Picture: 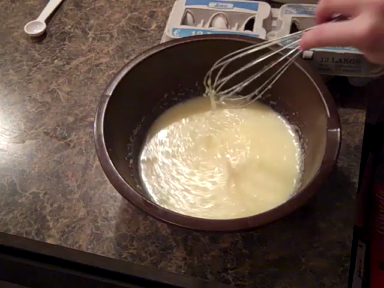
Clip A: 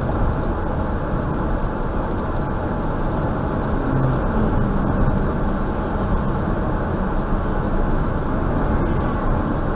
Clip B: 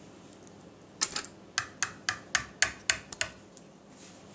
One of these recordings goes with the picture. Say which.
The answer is B